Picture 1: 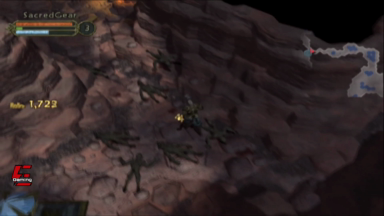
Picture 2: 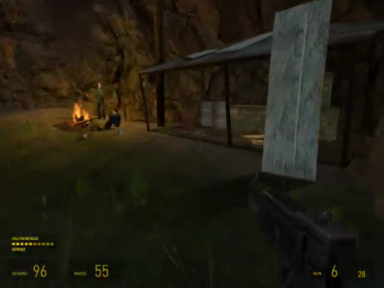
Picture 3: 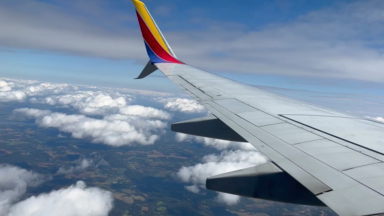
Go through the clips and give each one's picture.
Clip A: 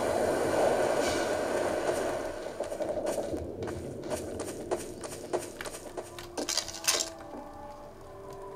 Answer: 2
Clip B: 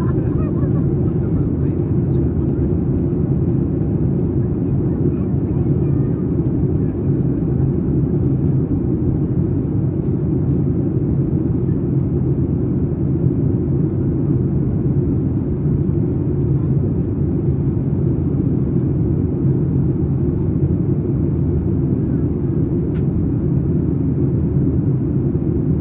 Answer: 3